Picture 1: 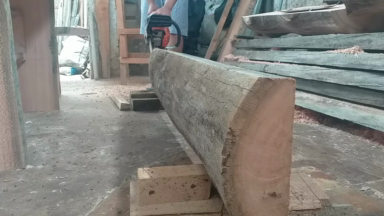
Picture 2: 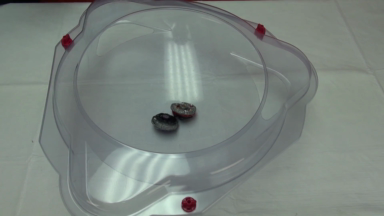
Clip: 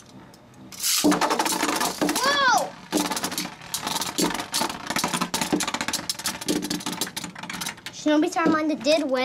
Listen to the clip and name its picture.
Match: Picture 2